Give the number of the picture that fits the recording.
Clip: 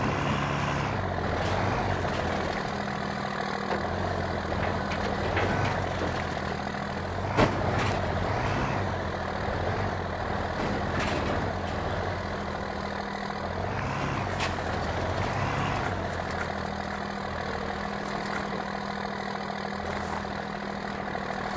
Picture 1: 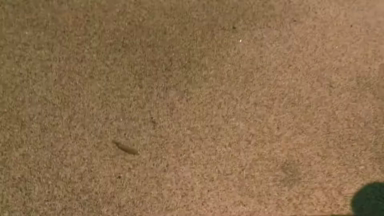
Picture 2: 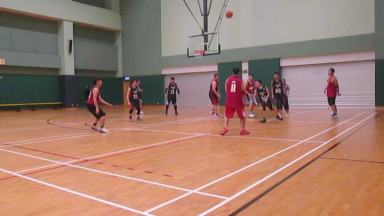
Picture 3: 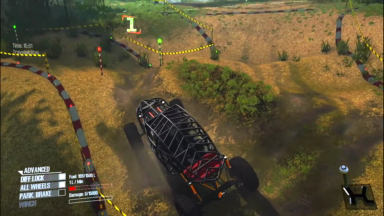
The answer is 3